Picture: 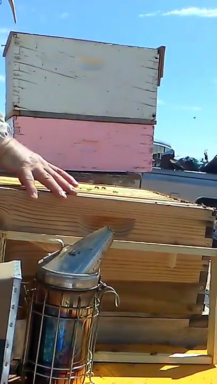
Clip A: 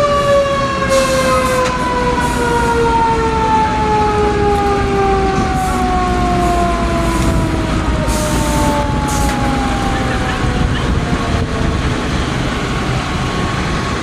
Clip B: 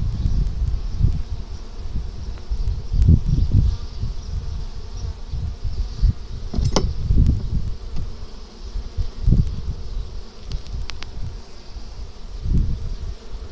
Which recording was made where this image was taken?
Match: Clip B